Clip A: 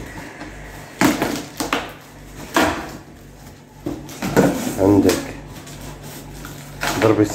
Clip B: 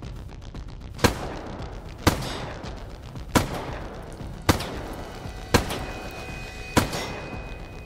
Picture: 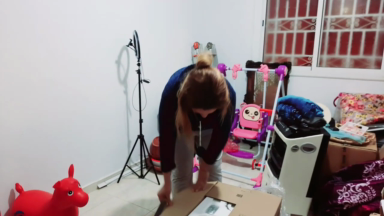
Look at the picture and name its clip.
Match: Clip A